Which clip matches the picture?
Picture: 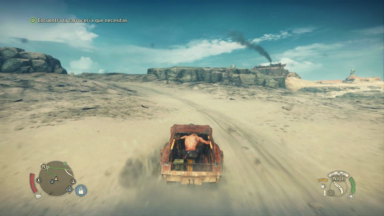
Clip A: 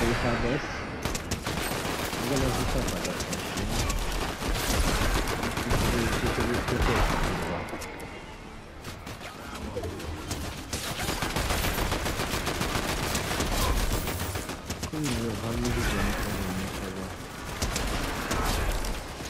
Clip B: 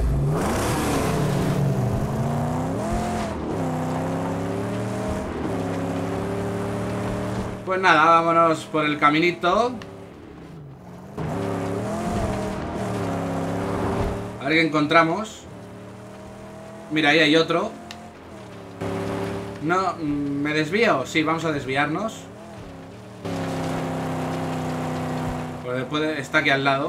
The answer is B